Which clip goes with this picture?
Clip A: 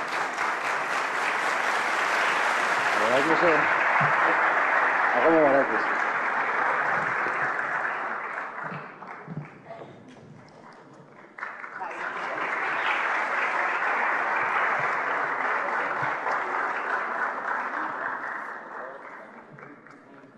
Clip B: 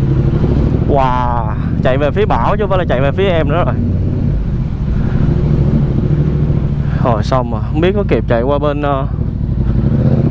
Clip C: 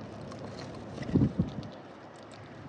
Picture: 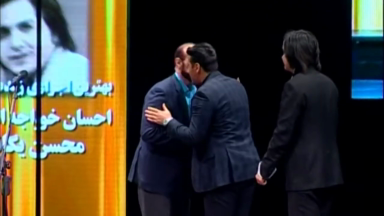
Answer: A